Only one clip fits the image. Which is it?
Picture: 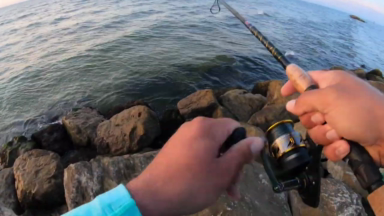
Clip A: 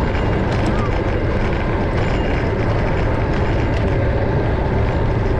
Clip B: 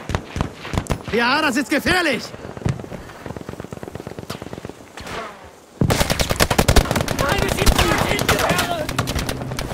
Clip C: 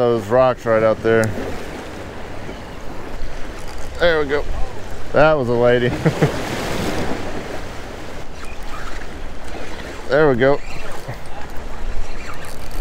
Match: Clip C